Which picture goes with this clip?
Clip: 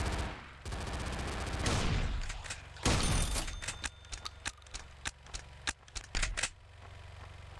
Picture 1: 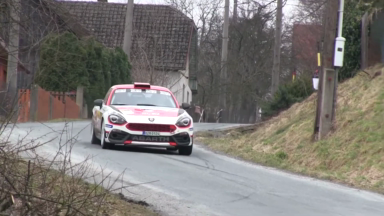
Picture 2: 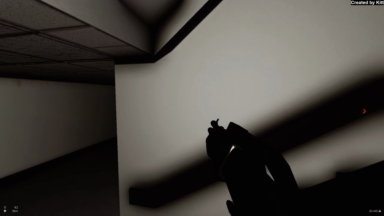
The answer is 2